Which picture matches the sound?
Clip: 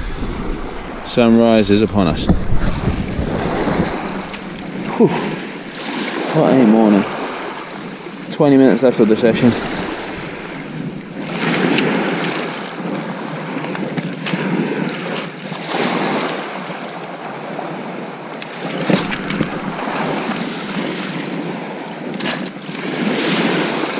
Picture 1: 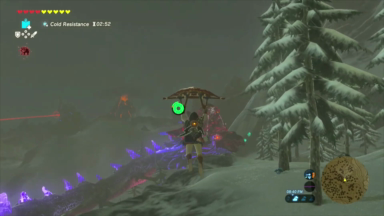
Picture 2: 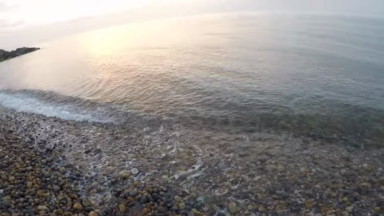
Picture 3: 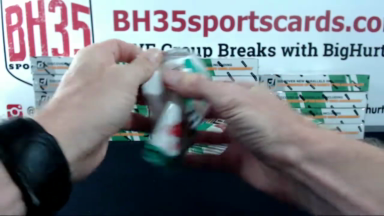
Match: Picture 2